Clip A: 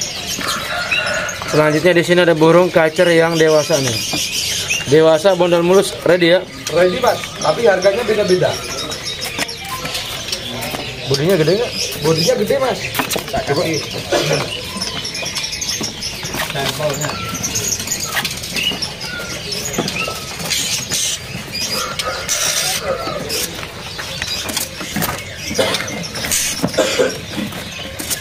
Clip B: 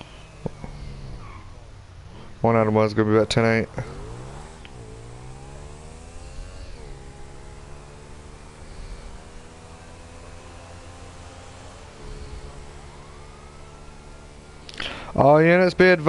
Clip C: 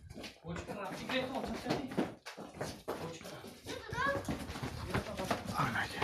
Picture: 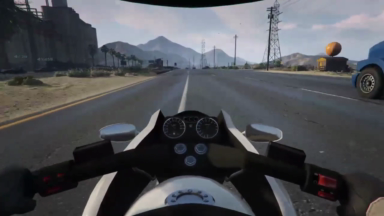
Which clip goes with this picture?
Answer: B